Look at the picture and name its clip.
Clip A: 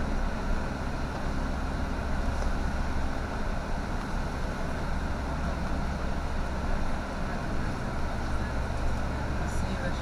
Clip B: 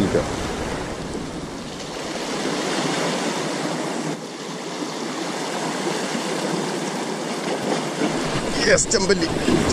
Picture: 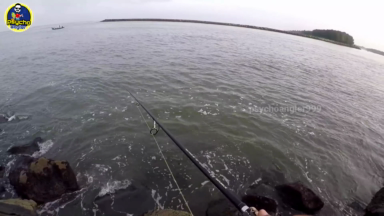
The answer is B